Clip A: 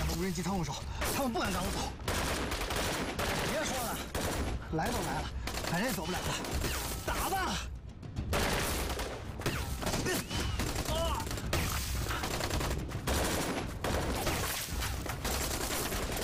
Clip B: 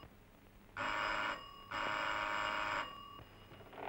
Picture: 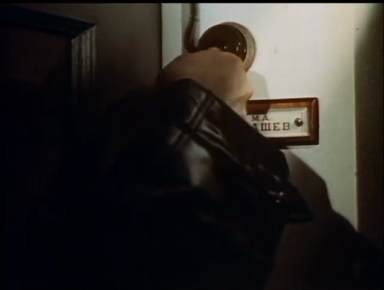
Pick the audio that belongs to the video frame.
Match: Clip B